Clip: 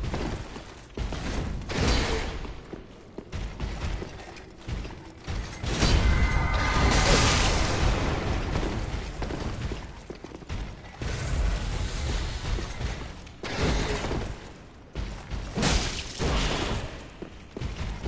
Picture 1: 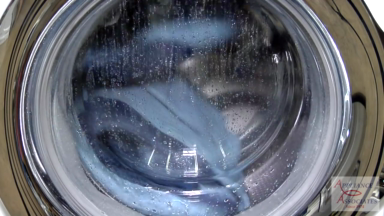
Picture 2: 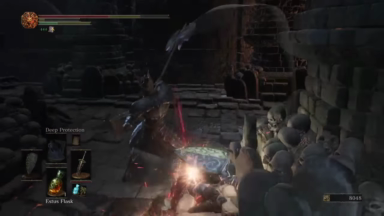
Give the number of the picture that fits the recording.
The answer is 2